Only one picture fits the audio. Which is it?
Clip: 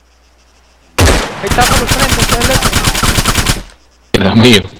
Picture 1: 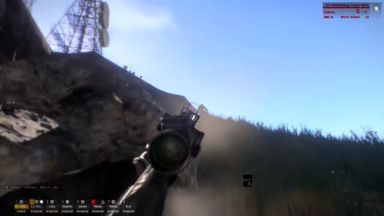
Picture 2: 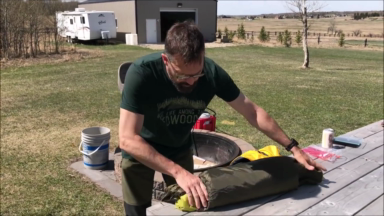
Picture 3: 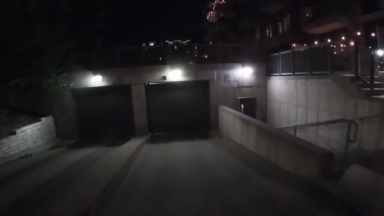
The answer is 1